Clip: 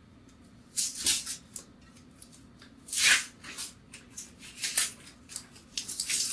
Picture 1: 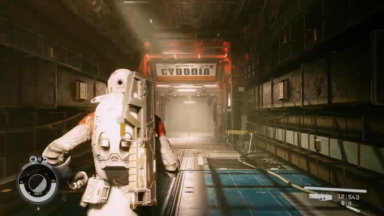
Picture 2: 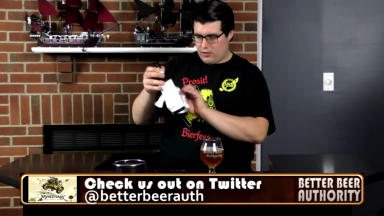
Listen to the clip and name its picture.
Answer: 2